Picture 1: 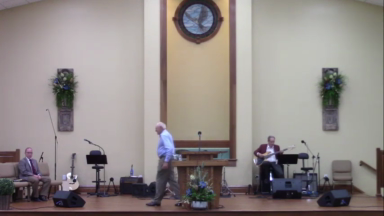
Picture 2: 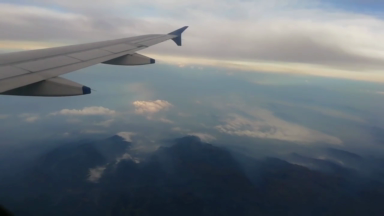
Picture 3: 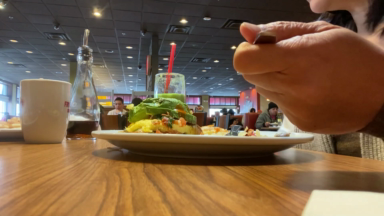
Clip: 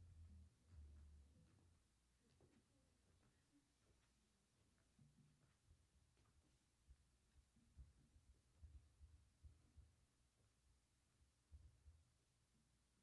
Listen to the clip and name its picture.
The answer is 1